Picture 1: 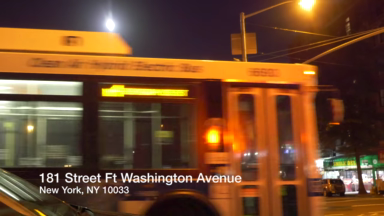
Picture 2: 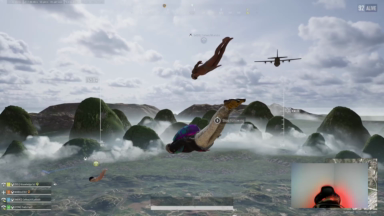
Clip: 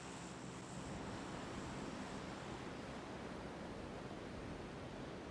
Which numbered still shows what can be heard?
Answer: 2